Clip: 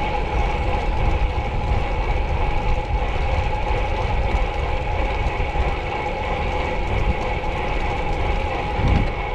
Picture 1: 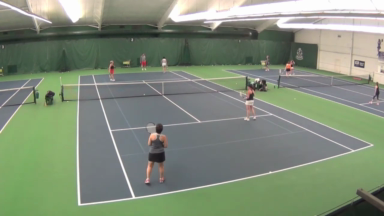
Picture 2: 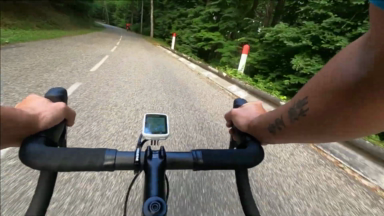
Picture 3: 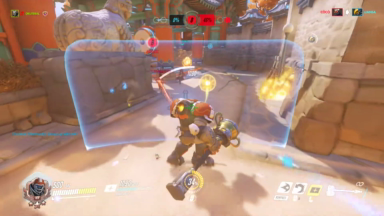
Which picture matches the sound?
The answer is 2